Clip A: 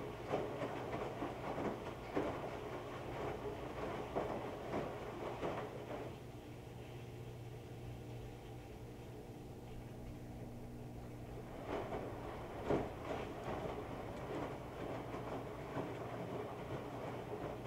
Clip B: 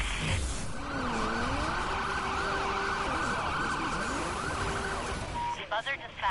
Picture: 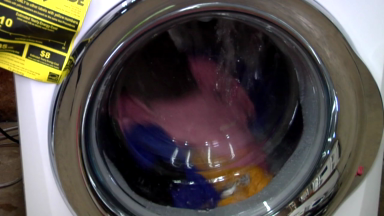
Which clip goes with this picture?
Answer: A